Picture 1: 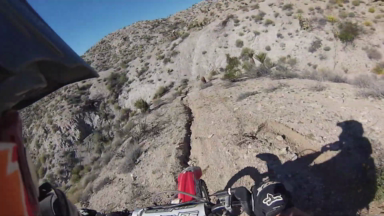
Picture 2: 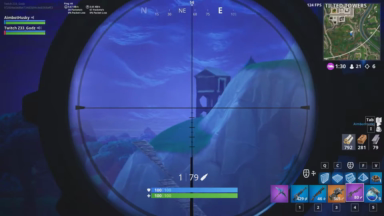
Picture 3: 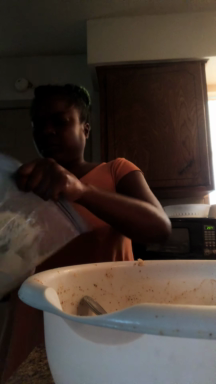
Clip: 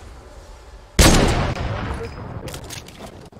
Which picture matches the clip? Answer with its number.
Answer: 2